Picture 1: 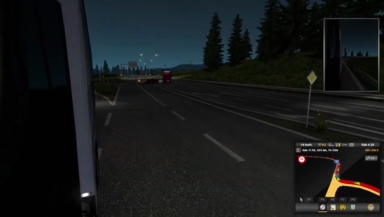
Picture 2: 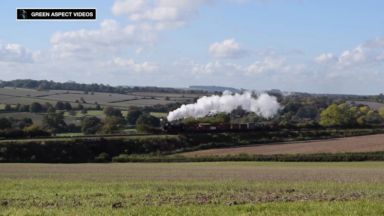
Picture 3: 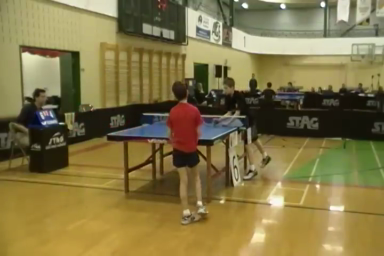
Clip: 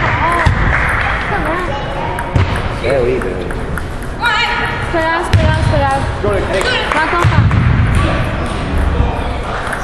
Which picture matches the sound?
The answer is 3